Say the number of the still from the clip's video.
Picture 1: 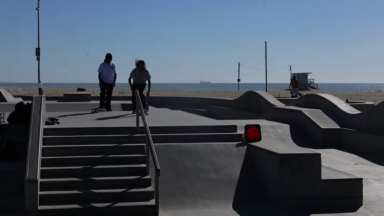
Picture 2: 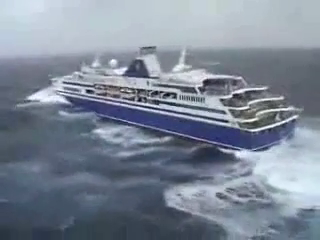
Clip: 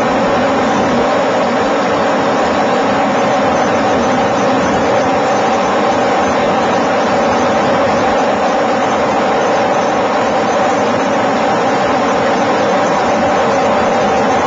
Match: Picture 2